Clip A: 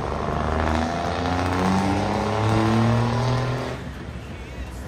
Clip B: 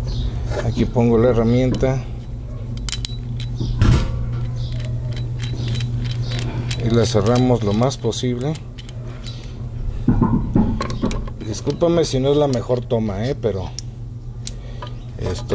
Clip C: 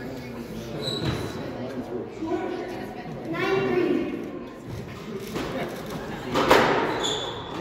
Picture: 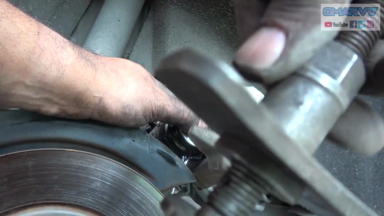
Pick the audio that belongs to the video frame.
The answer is B